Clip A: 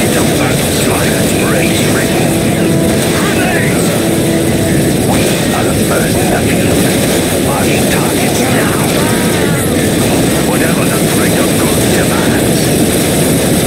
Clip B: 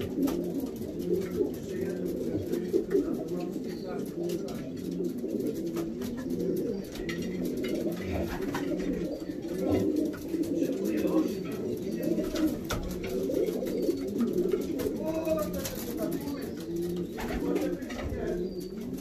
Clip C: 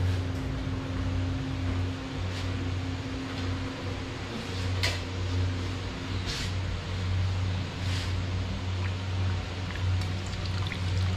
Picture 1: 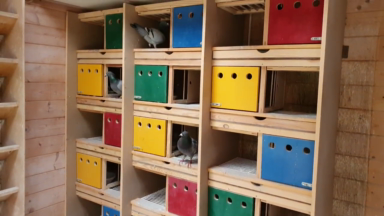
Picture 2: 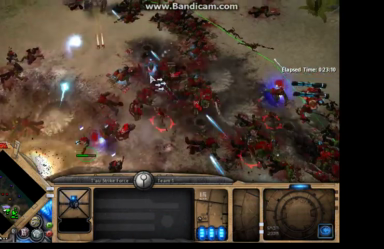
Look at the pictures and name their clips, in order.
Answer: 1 B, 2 A